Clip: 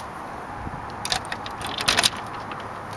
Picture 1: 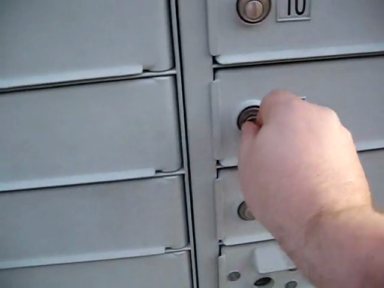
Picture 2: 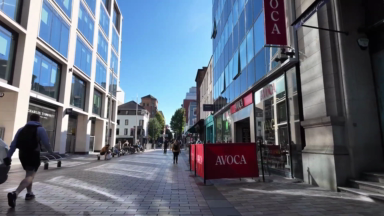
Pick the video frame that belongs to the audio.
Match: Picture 1